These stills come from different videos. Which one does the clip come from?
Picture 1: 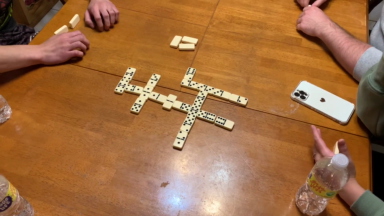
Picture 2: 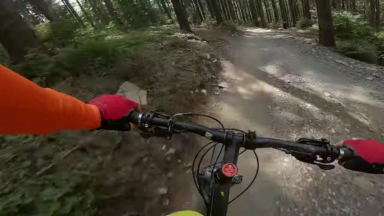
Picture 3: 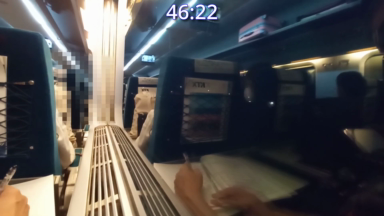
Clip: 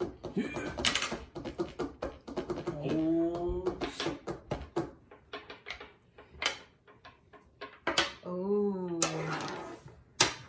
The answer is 1